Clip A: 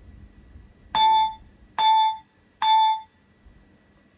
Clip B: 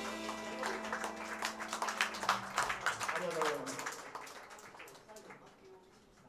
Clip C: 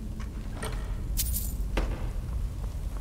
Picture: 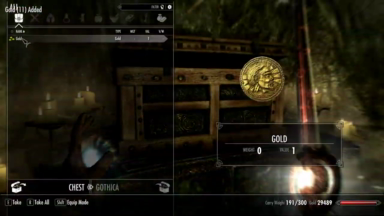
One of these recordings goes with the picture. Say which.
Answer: C